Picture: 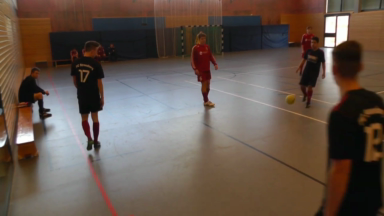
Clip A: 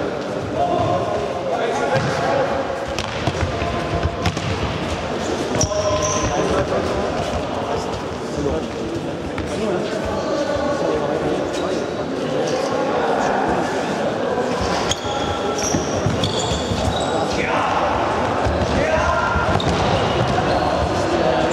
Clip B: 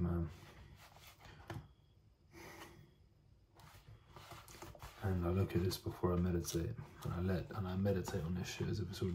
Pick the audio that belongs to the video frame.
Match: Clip A